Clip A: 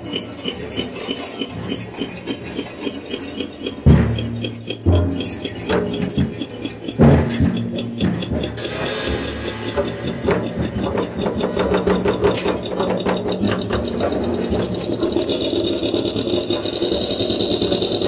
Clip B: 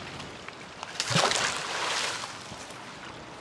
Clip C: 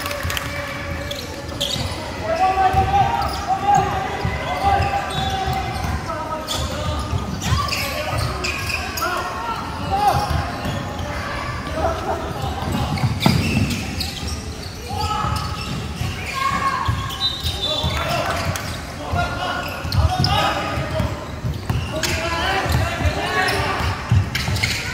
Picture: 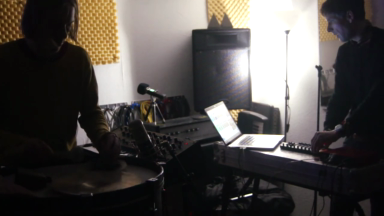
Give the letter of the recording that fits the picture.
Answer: A